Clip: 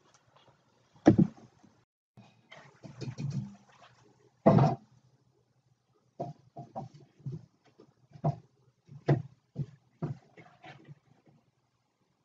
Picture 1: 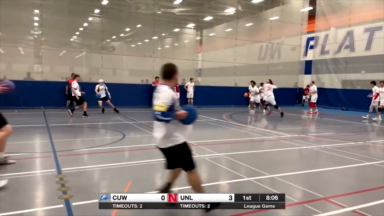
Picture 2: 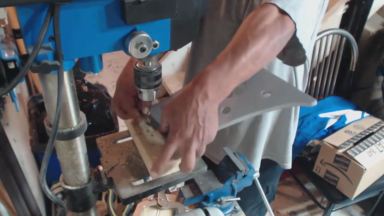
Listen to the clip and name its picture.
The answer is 2